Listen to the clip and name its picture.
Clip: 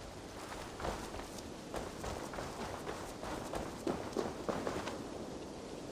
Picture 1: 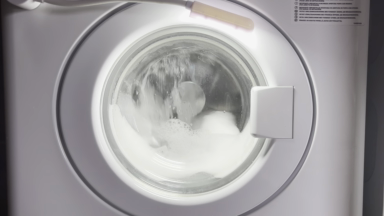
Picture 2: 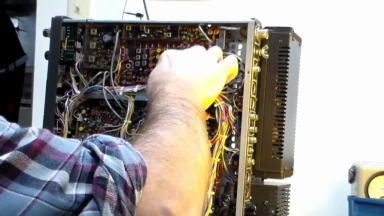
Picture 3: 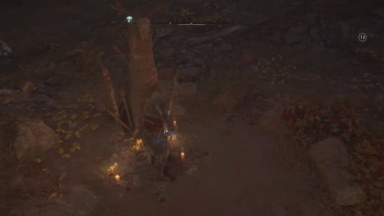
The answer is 3